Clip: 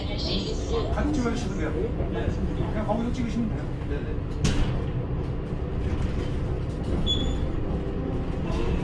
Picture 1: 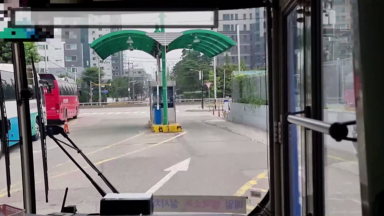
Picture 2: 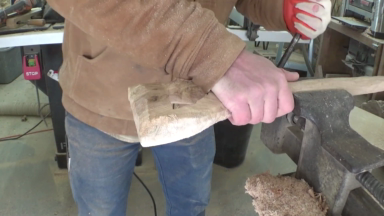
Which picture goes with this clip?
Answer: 1